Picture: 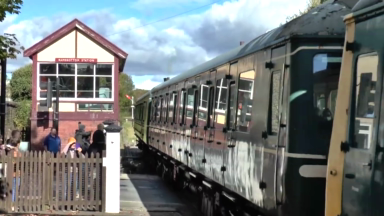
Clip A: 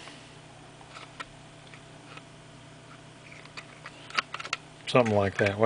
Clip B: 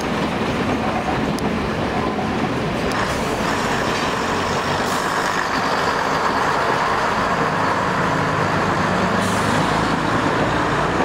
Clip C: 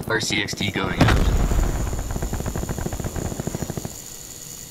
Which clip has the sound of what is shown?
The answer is B